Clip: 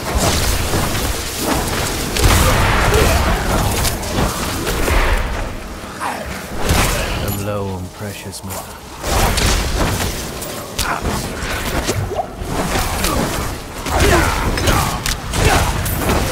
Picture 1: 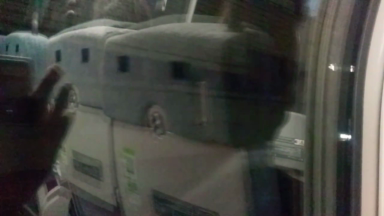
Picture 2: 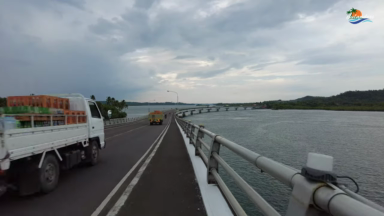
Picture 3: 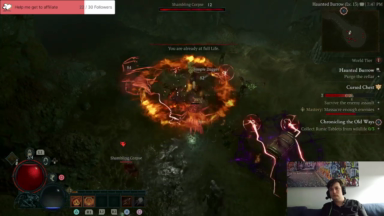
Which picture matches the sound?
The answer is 3